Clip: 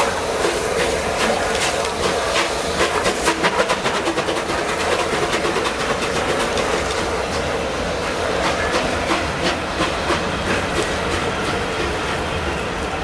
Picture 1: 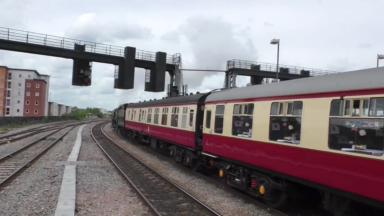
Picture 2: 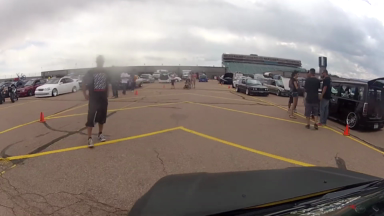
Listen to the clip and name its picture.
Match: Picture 1